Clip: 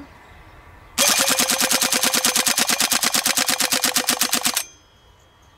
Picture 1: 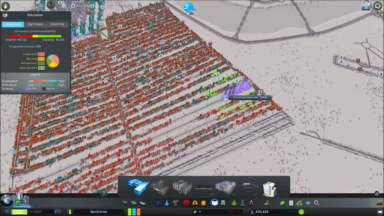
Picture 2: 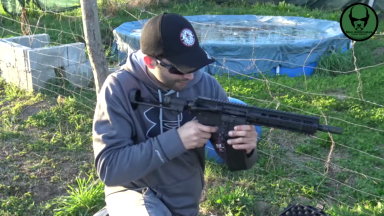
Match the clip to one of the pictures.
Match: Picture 2